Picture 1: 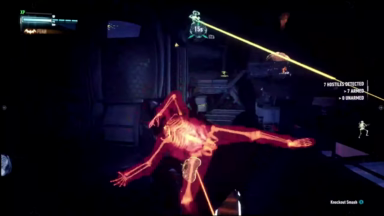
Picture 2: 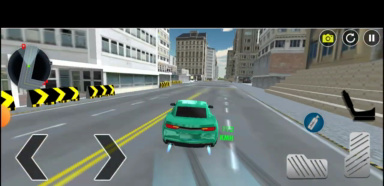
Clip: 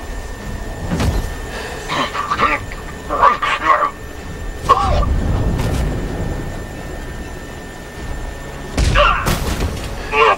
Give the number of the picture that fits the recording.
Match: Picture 1